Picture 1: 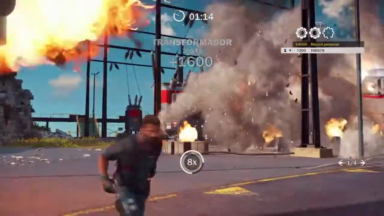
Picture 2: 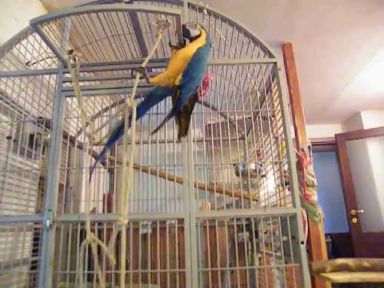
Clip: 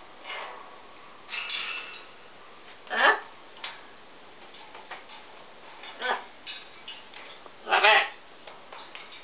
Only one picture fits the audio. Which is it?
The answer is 2